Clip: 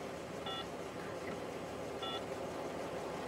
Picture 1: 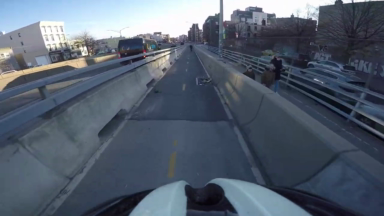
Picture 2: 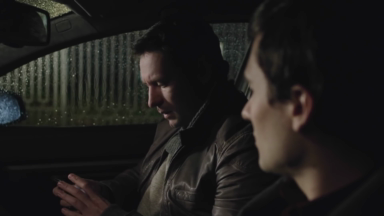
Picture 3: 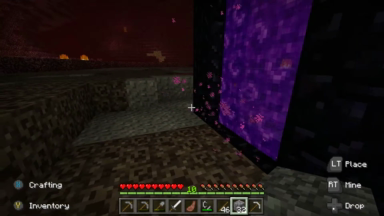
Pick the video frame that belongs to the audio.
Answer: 2